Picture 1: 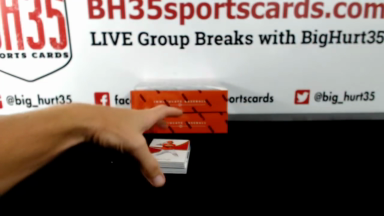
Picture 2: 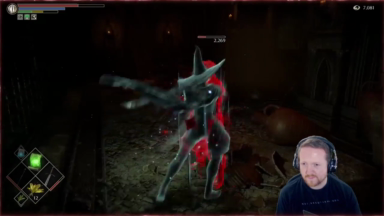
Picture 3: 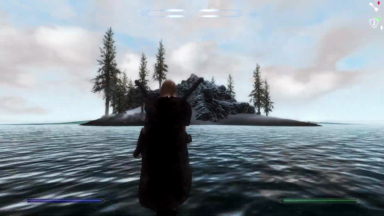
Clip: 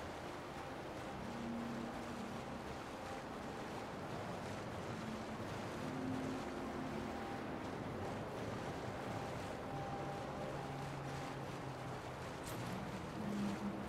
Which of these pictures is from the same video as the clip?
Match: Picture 3